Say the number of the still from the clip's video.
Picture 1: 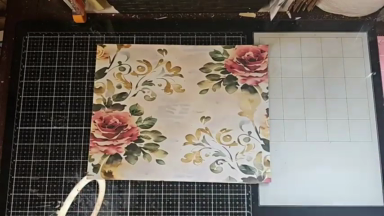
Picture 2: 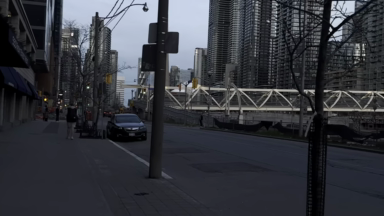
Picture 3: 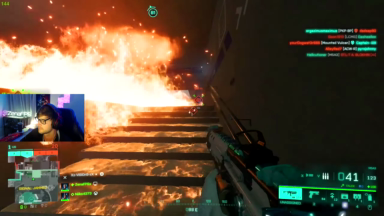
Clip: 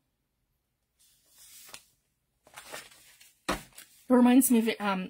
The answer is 1